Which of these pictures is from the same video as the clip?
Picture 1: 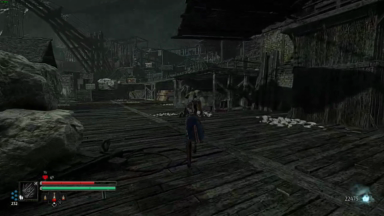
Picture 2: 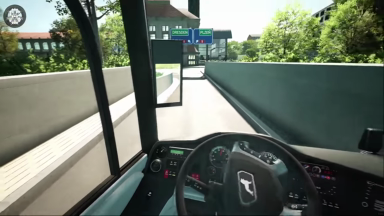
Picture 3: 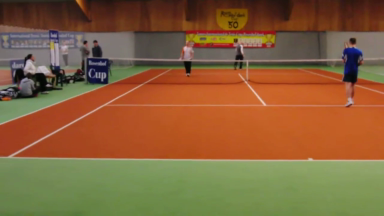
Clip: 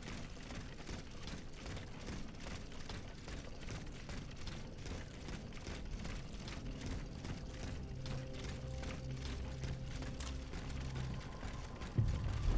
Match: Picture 1